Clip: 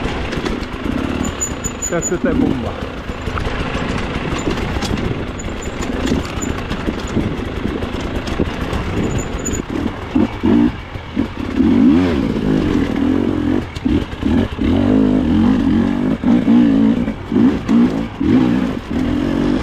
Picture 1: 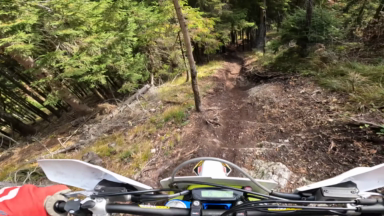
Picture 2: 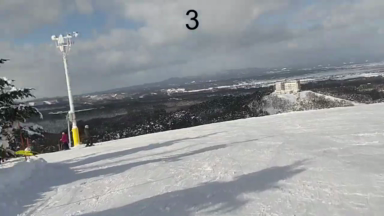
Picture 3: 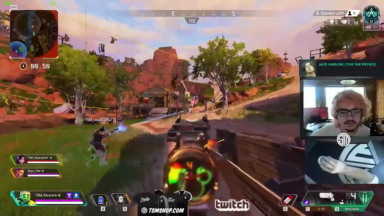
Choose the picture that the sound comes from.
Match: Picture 1